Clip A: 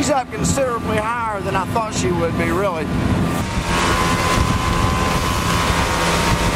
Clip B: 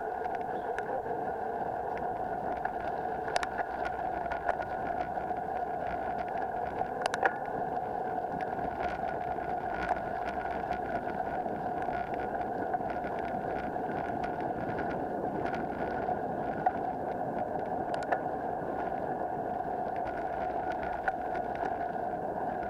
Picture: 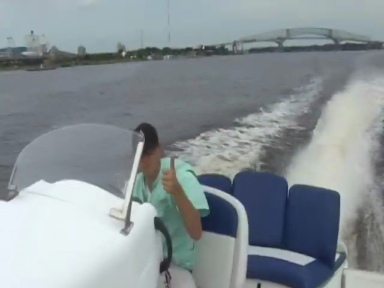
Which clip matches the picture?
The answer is A